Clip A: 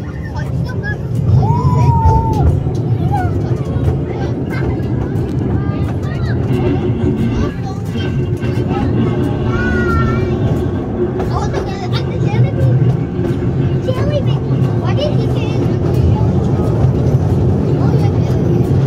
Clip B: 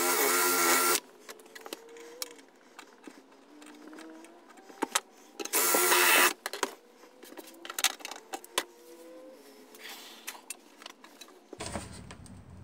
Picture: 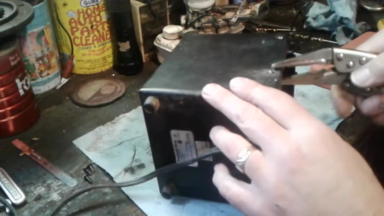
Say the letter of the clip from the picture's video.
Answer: B